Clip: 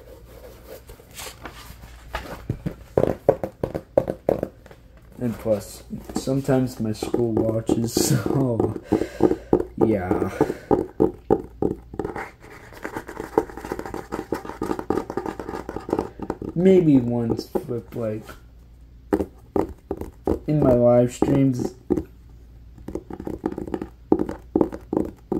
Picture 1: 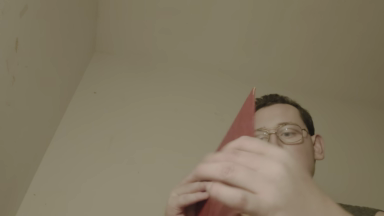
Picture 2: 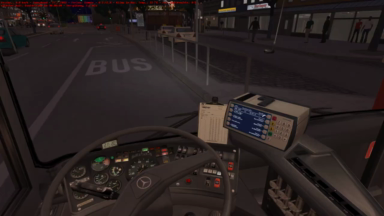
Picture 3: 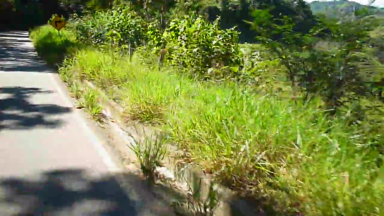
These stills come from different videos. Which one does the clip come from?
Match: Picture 1